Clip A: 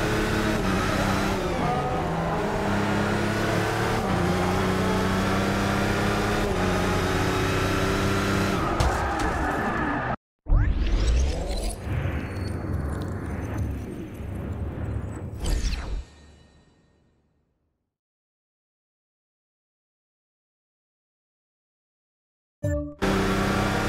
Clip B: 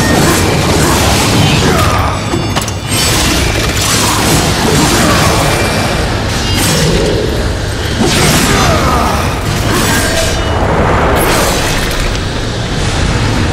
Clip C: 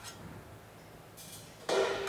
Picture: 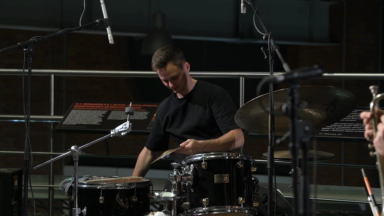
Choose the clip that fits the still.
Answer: C